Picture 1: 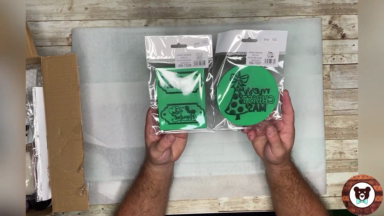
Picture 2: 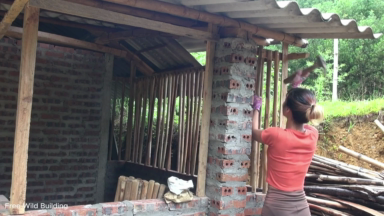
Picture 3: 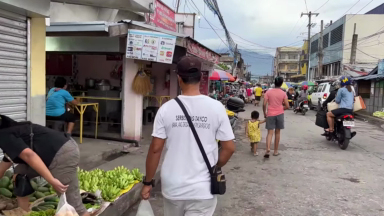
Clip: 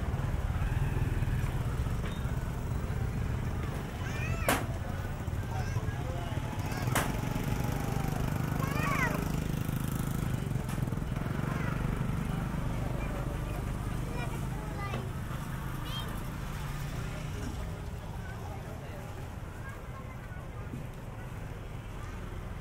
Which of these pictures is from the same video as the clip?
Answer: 3